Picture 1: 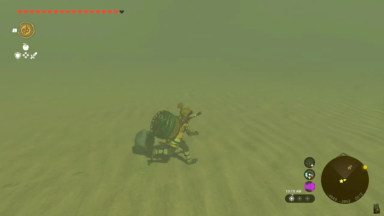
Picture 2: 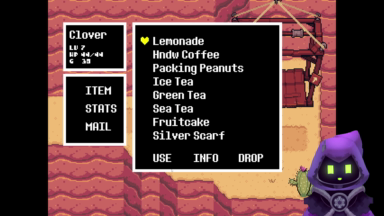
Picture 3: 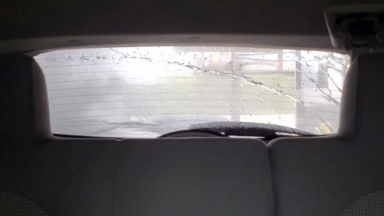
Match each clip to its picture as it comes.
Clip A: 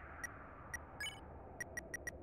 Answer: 2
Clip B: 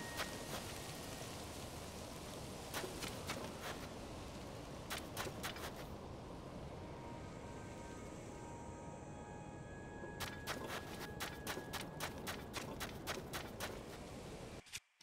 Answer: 1